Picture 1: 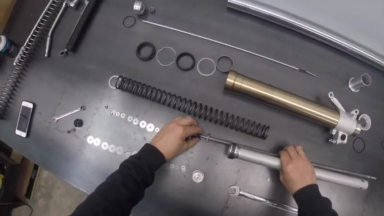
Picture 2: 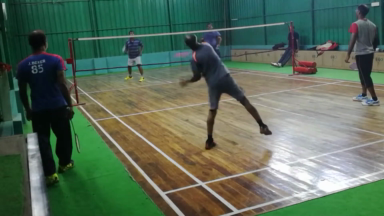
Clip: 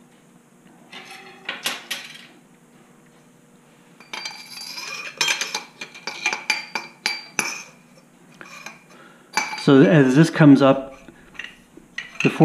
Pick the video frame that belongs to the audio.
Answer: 1